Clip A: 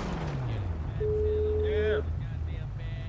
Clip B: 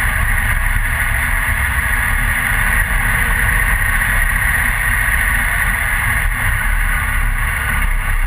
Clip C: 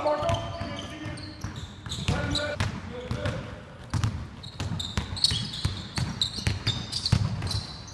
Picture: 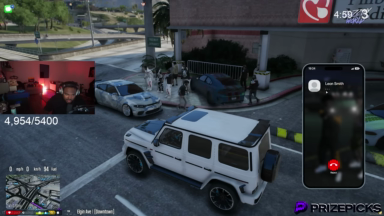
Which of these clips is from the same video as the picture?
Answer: A